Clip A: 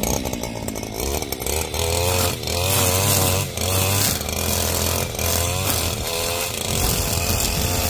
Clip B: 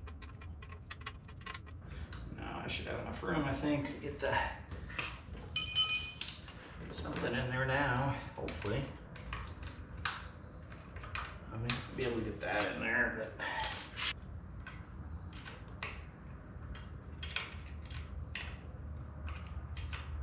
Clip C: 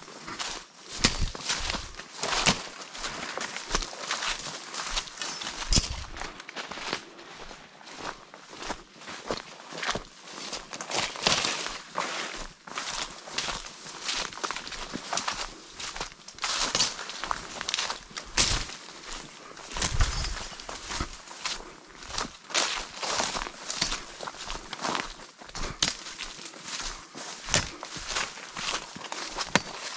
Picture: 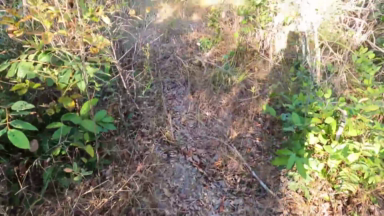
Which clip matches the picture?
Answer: C